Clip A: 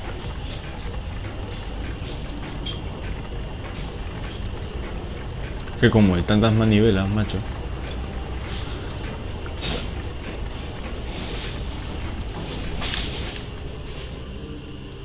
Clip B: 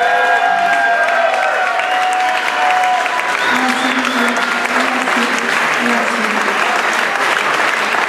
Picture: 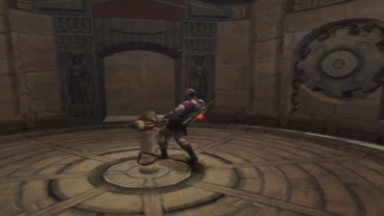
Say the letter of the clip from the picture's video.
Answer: A